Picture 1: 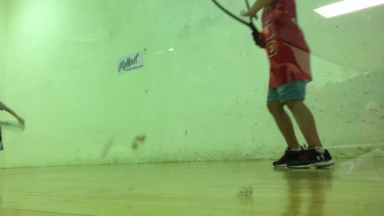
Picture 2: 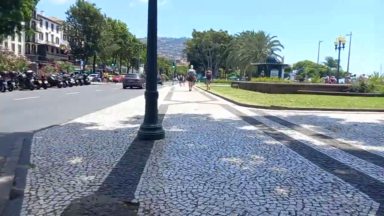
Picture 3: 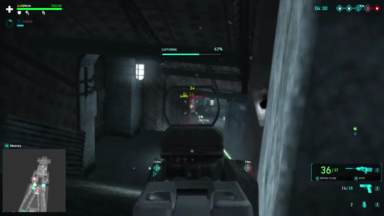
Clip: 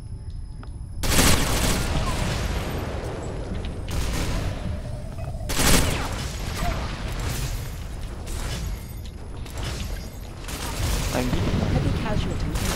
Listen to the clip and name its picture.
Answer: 3